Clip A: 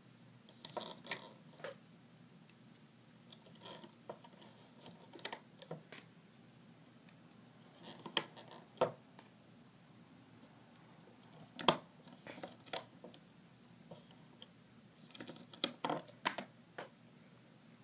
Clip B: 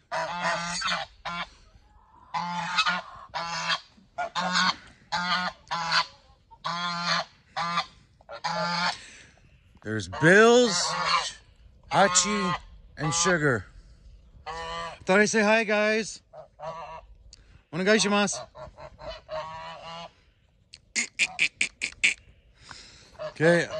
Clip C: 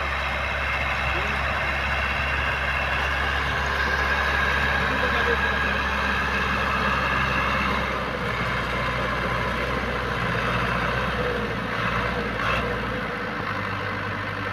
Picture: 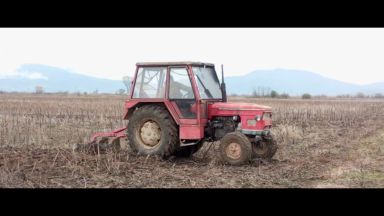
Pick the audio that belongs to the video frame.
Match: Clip C